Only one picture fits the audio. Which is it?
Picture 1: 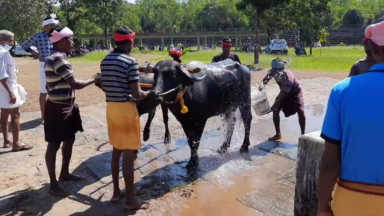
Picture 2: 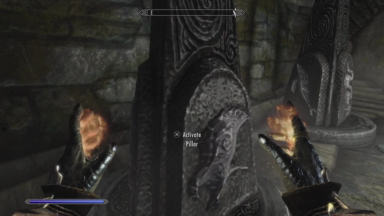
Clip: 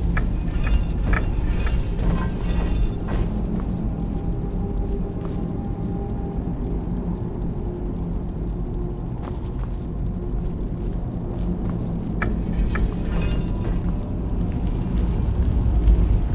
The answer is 2